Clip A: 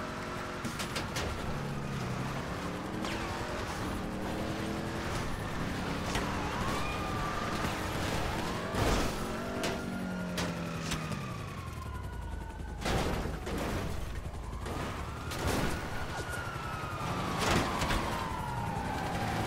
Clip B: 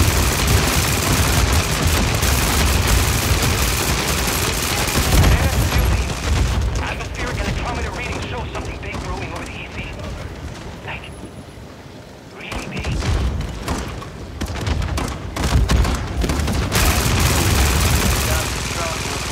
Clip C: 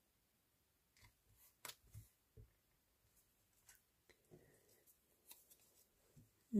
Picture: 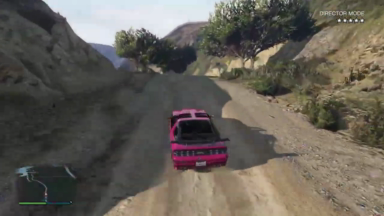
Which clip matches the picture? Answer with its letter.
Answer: A